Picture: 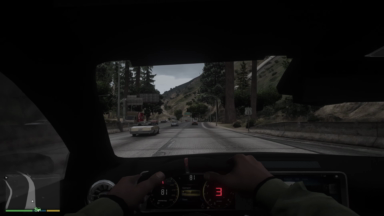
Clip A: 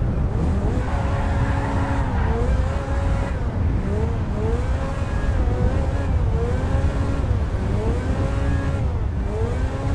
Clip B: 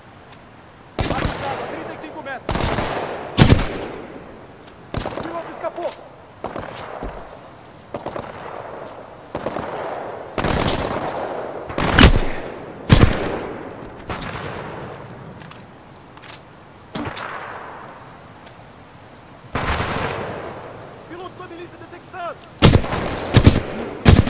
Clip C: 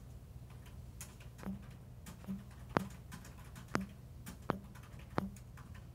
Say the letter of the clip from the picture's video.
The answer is A